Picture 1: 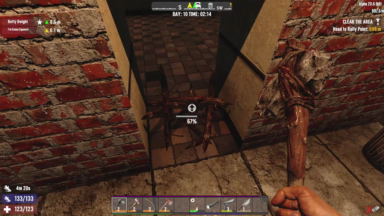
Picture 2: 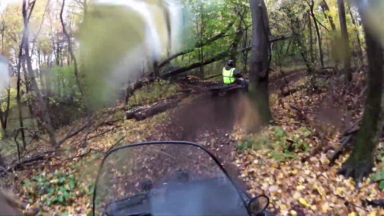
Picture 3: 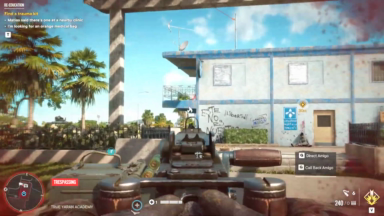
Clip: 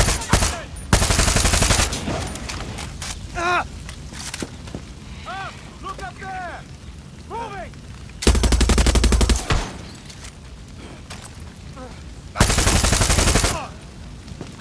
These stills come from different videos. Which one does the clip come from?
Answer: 3